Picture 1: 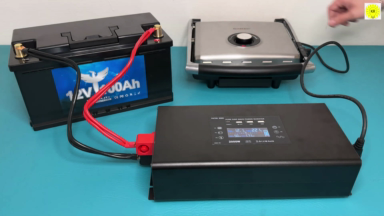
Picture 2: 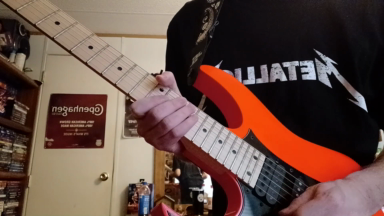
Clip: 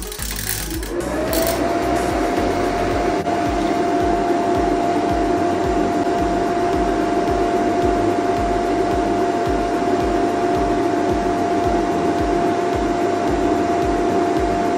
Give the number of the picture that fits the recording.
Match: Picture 1